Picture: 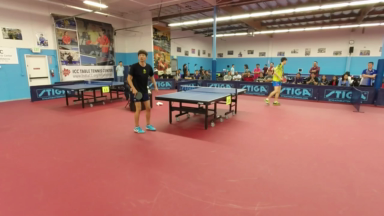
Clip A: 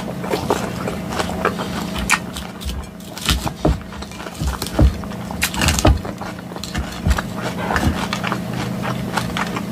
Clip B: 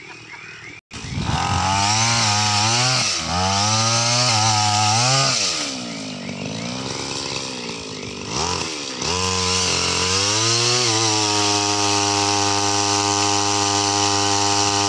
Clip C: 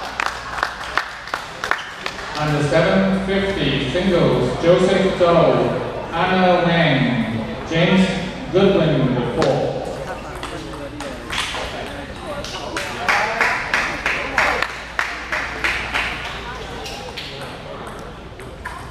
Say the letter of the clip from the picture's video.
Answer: C